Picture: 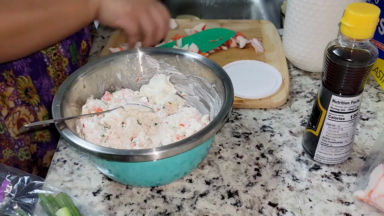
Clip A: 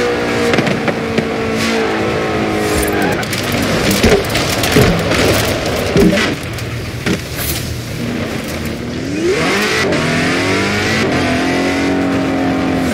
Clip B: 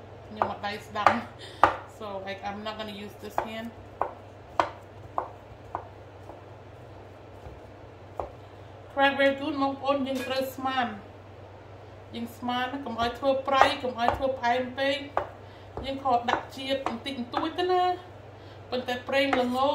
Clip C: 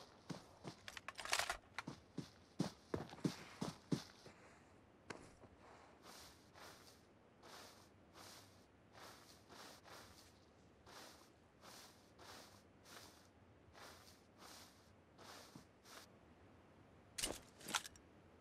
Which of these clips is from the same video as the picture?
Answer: B